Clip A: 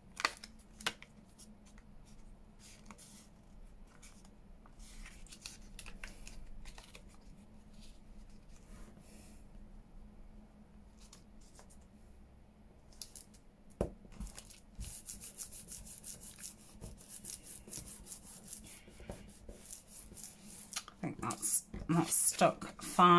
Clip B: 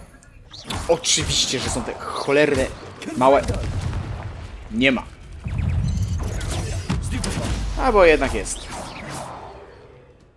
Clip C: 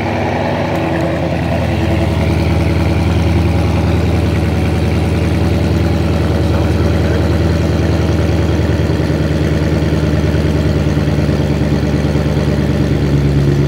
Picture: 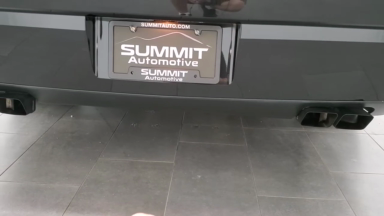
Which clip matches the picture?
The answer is C